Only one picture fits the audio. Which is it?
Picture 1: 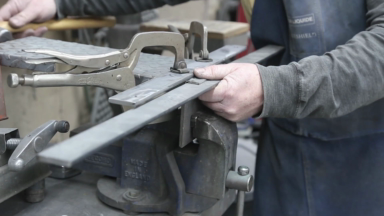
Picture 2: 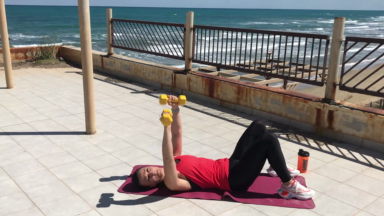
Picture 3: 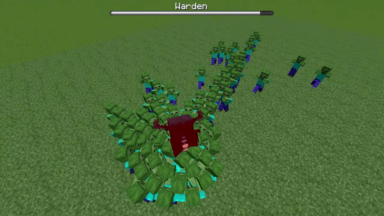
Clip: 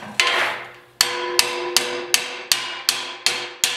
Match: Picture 1